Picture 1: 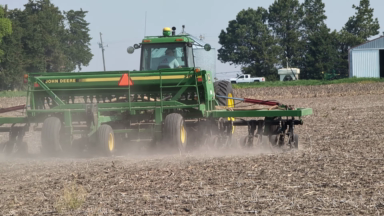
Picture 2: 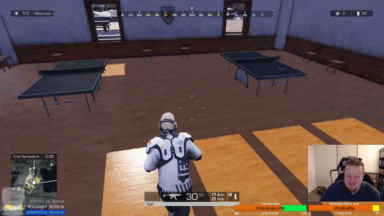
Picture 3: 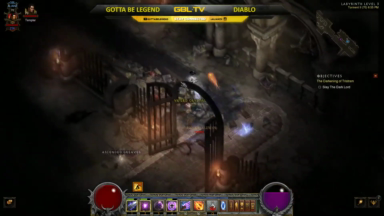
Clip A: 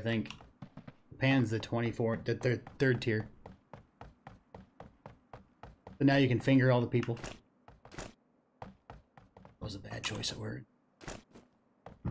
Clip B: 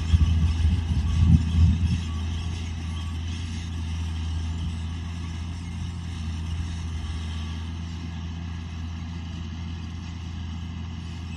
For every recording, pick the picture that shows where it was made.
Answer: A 2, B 1